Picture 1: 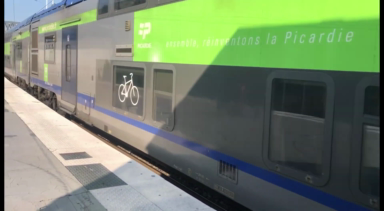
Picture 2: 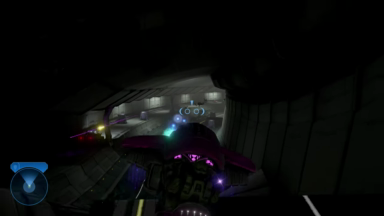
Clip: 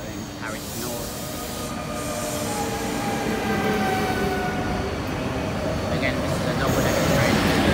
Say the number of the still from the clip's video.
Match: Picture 1